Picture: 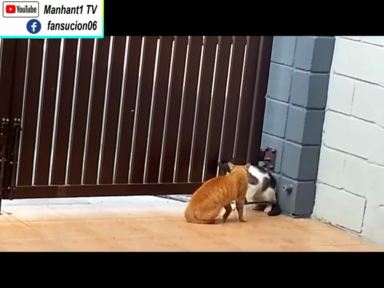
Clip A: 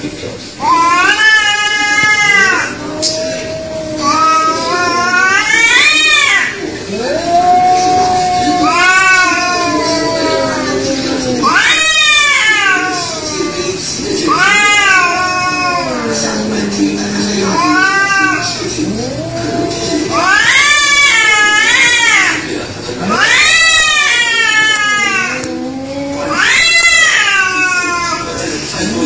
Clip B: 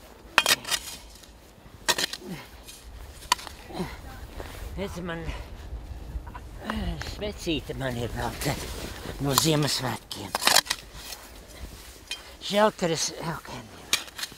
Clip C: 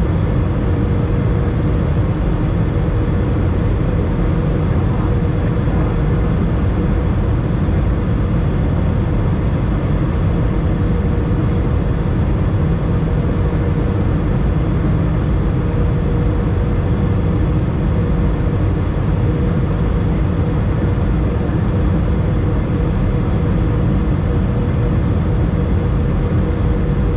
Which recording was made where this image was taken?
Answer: A